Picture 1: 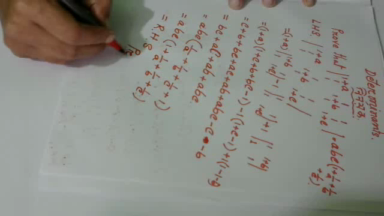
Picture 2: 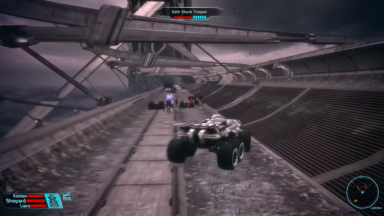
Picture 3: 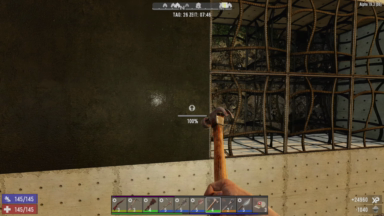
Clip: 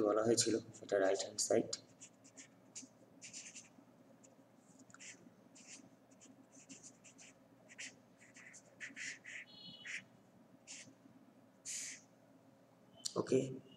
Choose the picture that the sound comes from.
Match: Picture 1